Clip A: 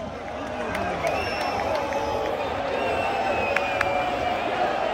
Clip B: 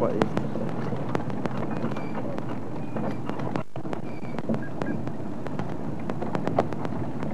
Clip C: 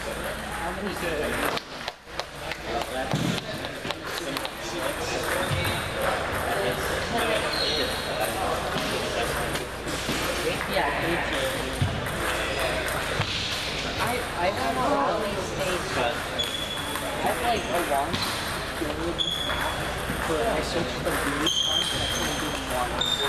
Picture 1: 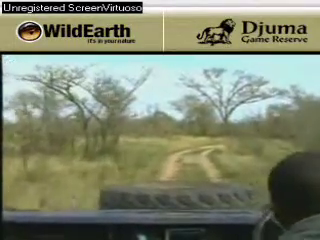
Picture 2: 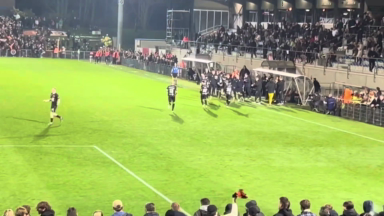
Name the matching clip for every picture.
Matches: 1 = B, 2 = A